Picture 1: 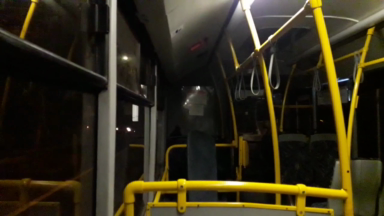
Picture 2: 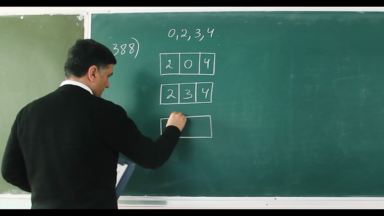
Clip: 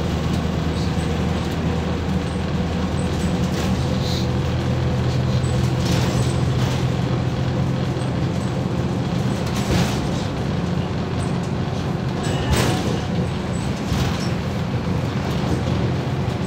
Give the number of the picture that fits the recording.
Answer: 1